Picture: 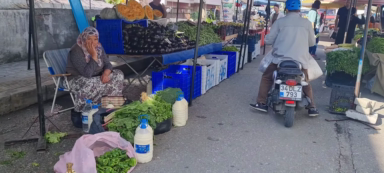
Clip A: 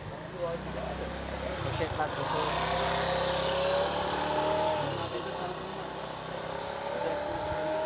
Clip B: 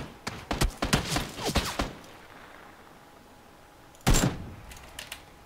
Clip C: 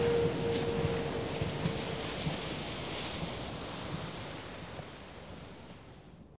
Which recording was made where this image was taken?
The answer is A